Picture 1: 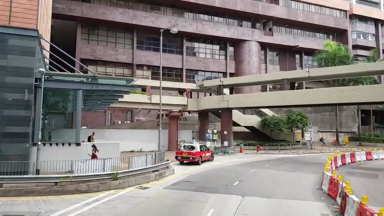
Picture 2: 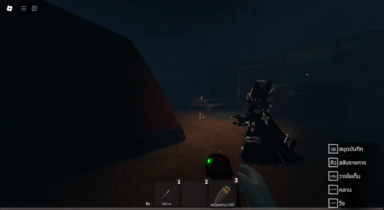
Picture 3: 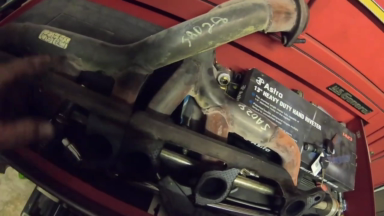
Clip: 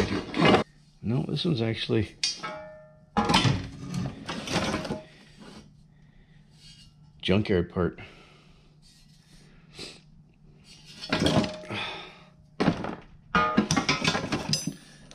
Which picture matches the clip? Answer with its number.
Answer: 3